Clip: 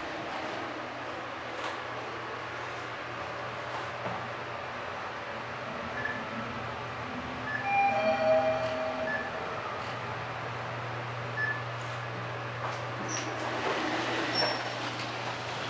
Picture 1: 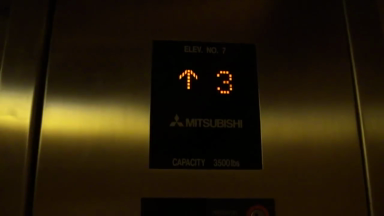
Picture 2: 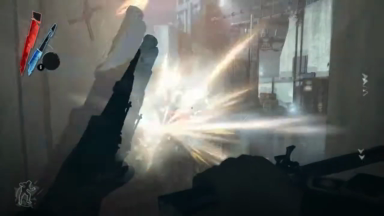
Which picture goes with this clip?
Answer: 1